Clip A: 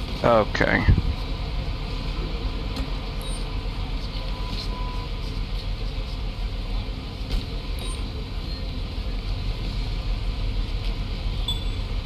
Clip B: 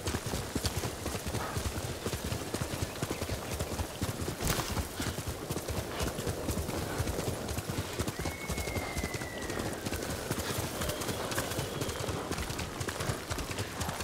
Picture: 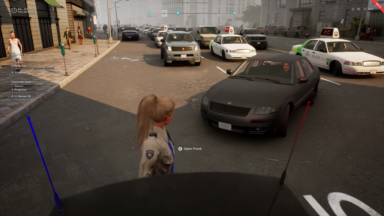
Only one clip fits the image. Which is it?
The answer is A